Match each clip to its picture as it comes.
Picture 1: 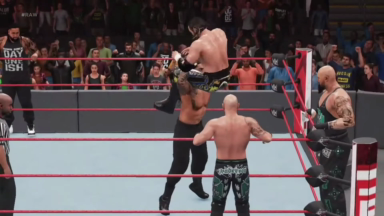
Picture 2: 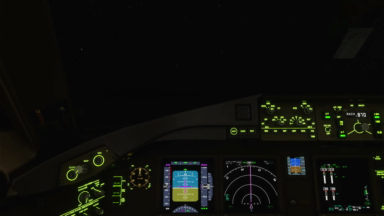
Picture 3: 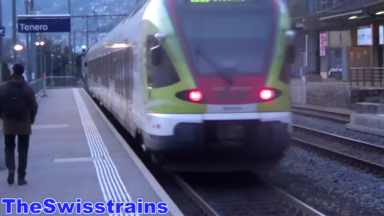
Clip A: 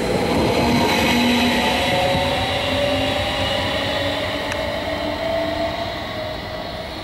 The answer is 3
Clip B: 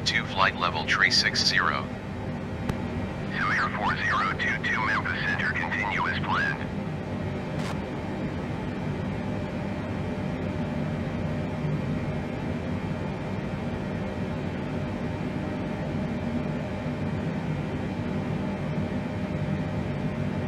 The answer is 2